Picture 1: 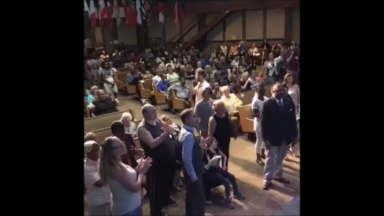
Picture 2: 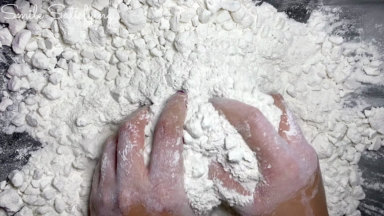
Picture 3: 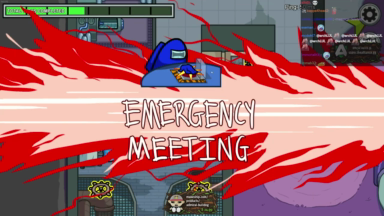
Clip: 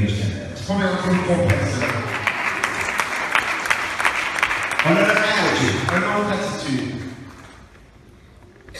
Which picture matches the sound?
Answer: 1